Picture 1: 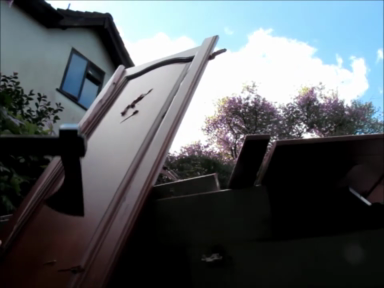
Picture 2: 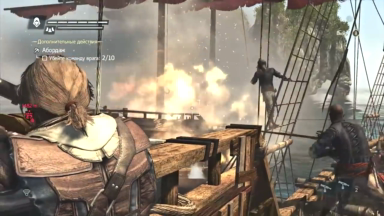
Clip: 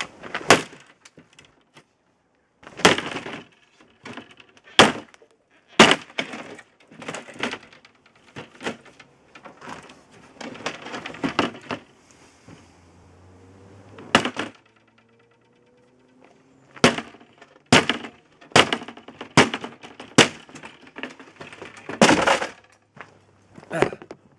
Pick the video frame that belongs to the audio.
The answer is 1